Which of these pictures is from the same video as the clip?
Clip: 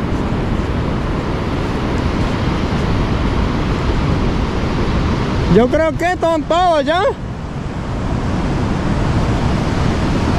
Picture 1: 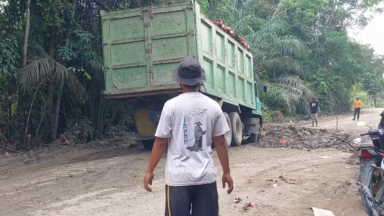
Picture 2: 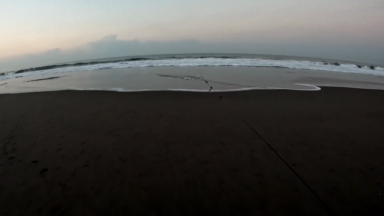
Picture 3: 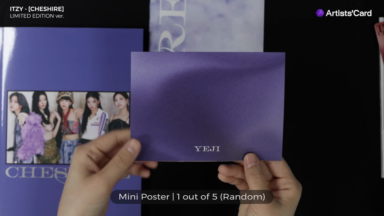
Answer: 2